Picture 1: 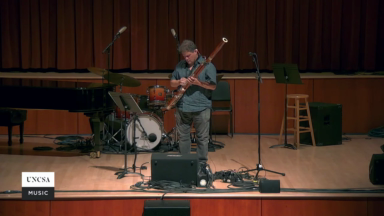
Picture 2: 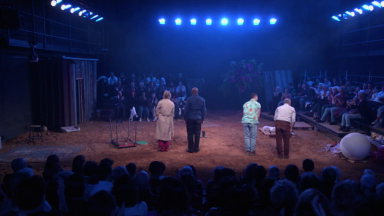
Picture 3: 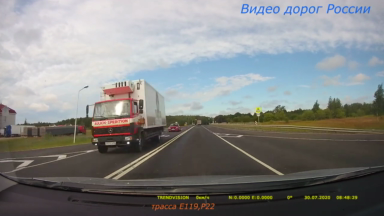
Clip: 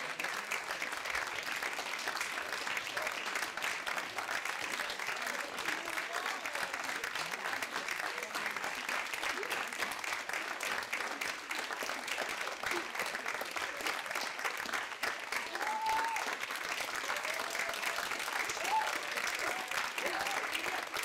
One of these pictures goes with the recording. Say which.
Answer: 2